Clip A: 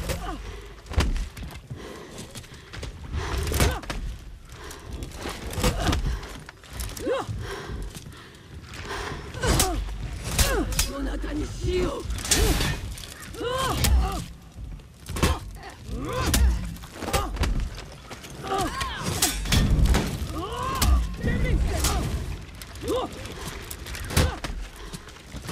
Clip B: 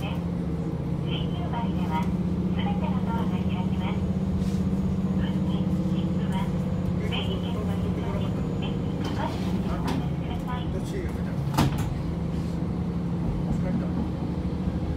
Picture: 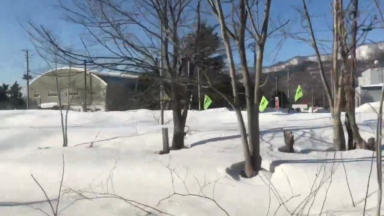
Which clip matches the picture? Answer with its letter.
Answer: B